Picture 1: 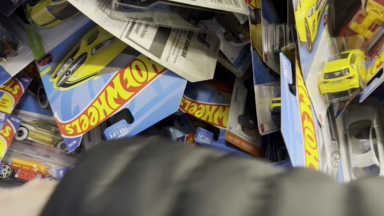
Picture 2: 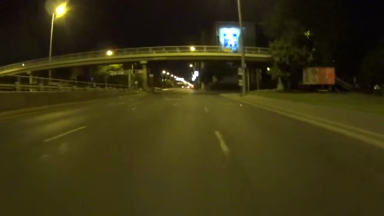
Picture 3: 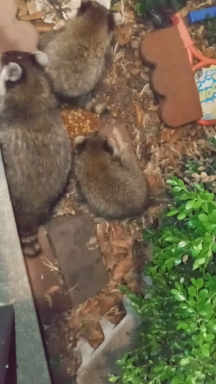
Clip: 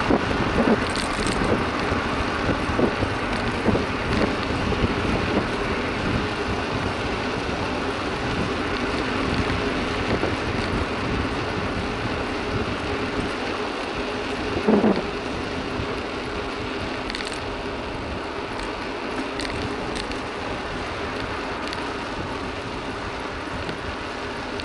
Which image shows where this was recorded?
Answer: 2